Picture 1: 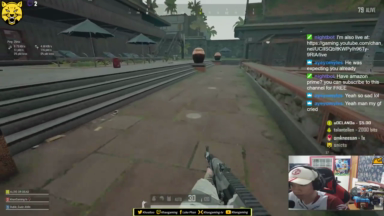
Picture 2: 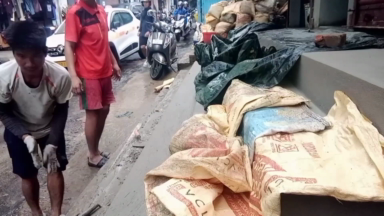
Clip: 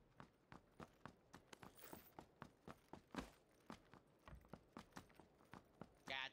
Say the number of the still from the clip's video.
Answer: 1